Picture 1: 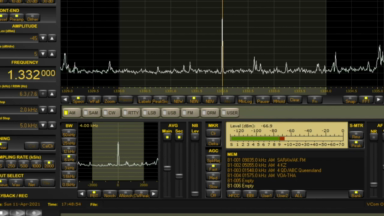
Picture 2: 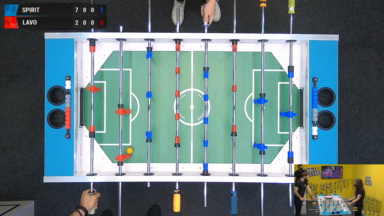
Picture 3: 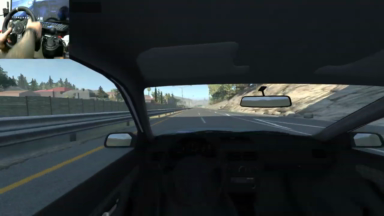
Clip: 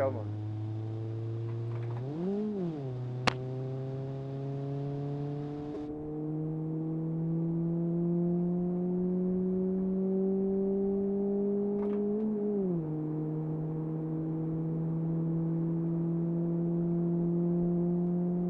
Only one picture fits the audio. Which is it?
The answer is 3